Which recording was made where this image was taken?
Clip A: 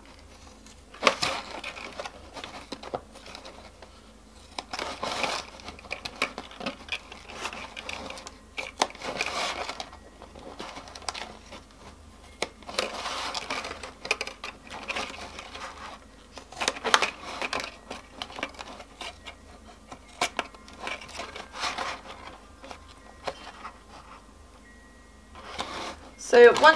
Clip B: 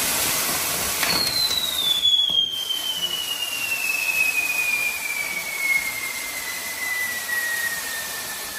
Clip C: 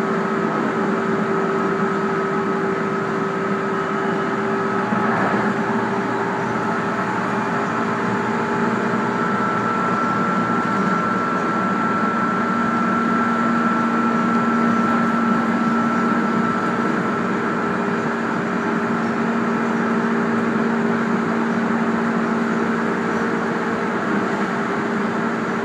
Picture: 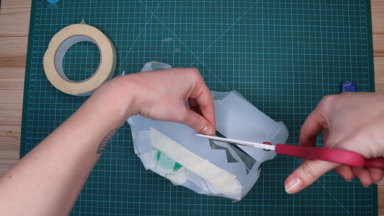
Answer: A